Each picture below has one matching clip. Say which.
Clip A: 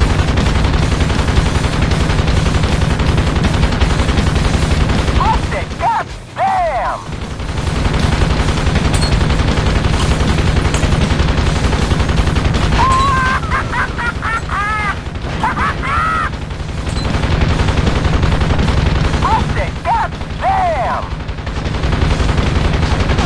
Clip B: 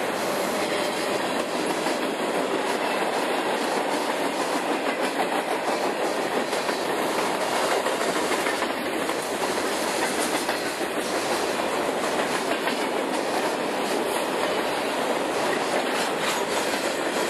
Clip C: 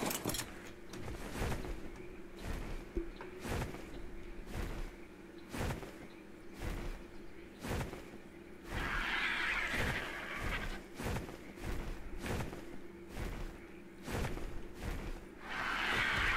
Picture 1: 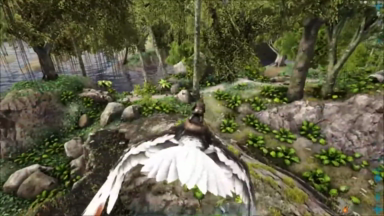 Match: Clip C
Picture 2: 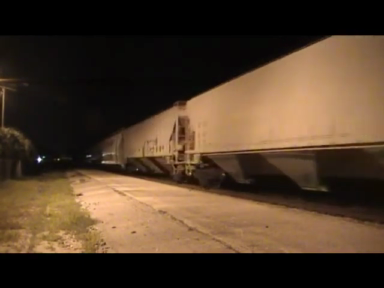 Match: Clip B